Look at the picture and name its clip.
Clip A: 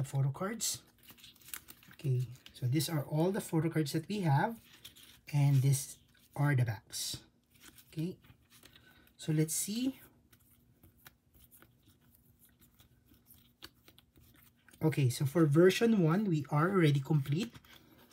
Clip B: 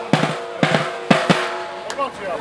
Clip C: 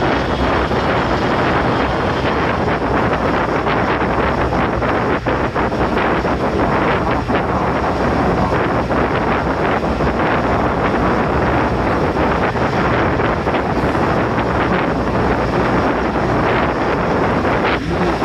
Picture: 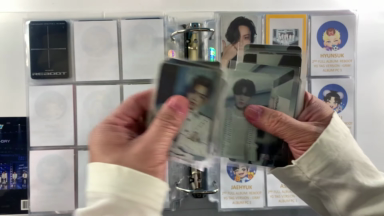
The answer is A